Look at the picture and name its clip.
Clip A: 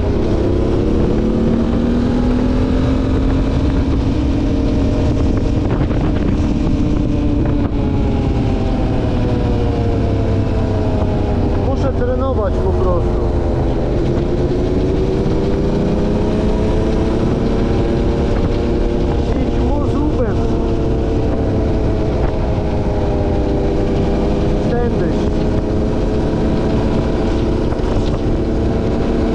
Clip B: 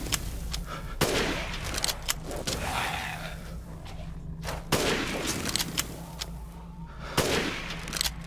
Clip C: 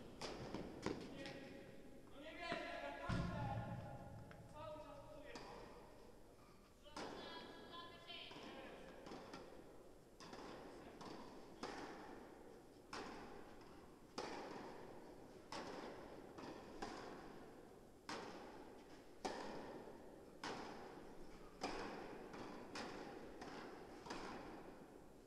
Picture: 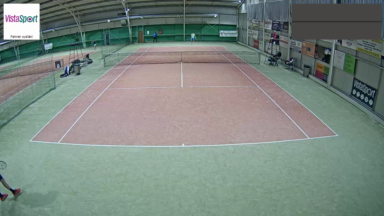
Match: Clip C